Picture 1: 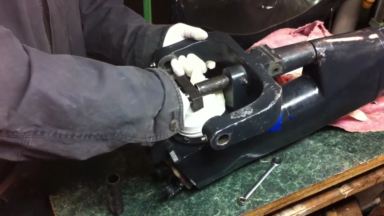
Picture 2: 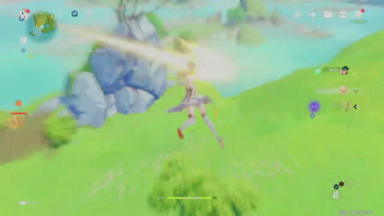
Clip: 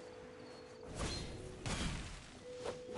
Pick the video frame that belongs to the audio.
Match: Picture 2